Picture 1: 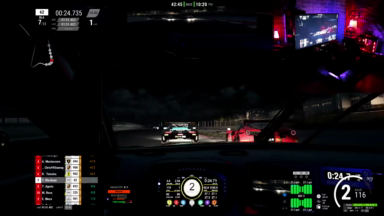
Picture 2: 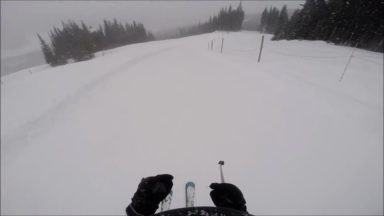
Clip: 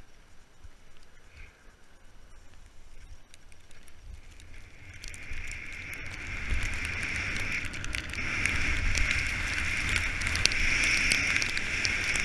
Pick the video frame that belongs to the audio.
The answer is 2